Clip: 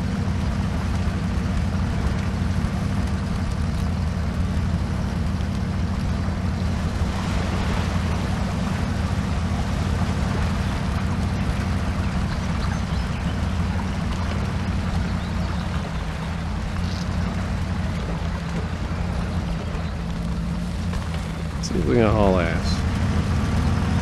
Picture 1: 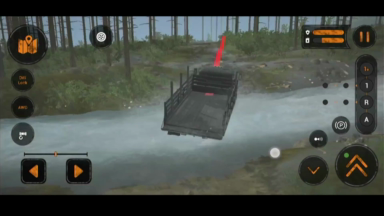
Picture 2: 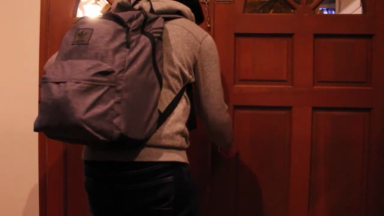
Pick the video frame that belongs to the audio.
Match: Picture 1